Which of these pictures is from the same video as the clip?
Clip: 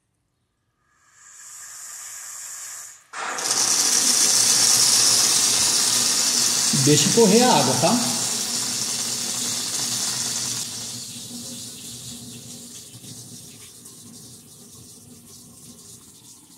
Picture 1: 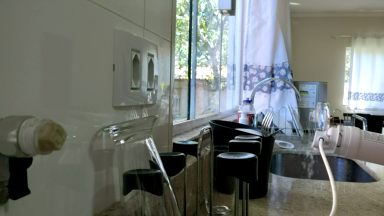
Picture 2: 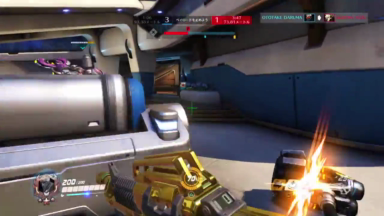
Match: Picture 1